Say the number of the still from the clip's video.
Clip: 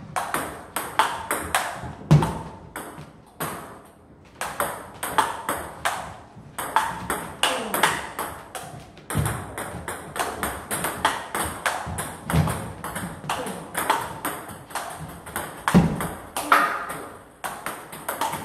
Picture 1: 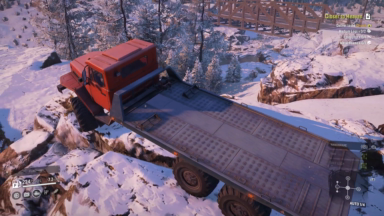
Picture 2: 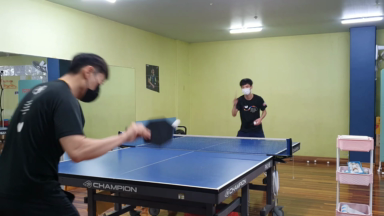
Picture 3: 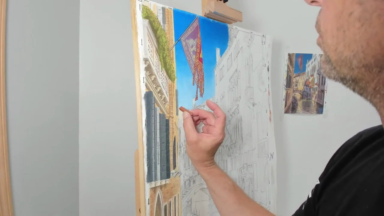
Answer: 2